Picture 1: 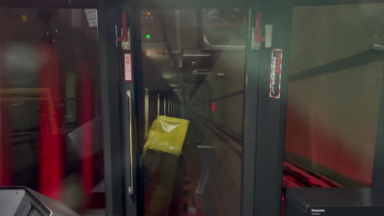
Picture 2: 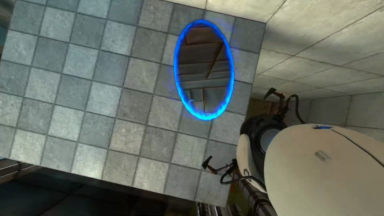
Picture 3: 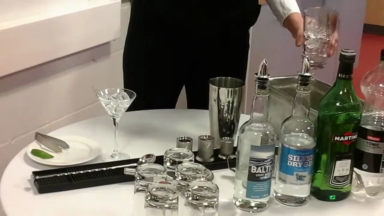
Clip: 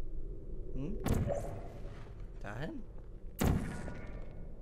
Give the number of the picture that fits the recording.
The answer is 2